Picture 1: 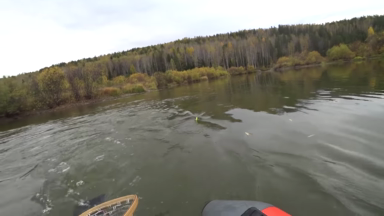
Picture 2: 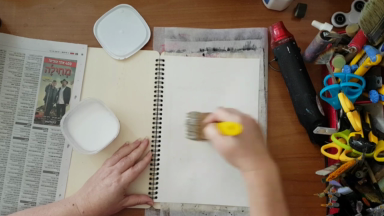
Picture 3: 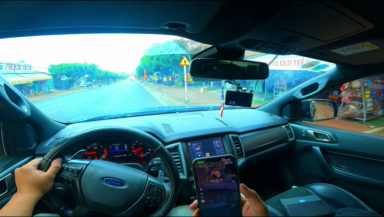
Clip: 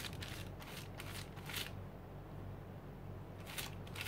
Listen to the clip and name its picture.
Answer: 2